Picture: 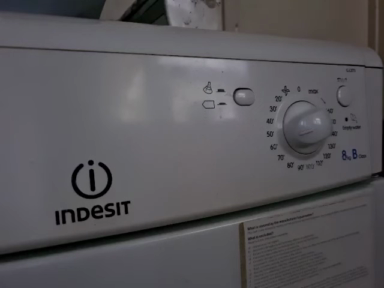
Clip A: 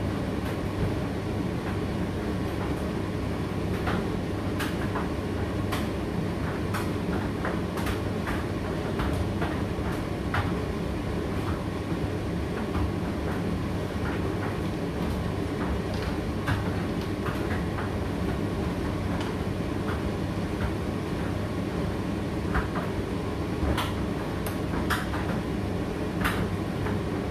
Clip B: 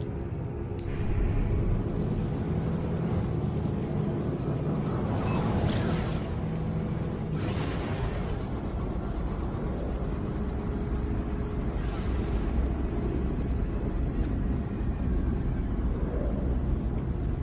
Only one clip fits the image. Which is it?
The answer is A